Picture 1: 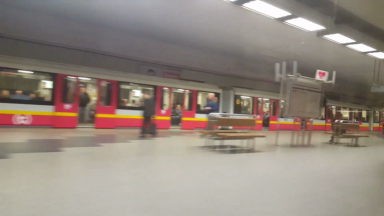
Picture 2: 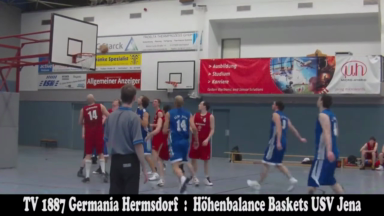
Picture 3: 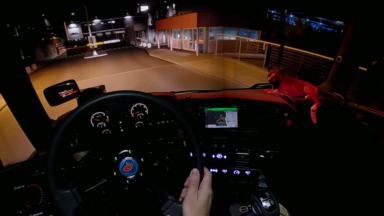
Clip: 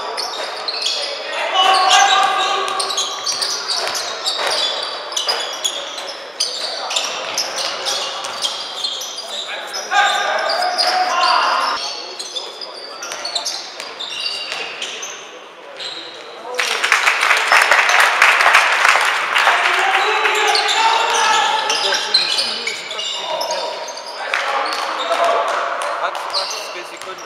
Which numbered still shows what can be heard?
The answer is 2